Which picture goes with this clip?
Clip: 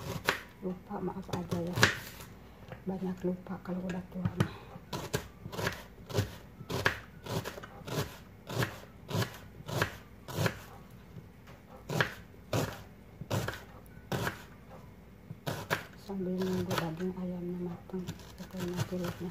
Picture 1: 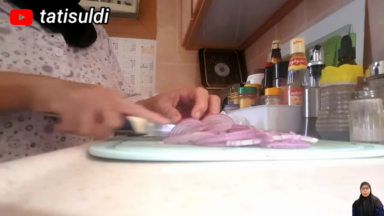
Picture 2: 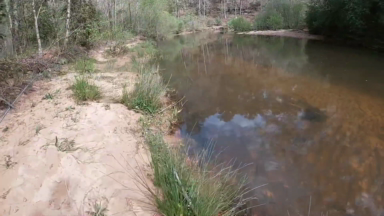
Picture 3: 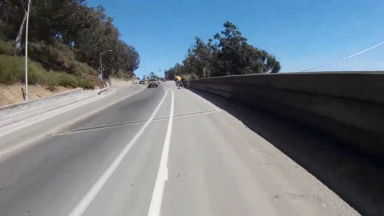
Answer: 1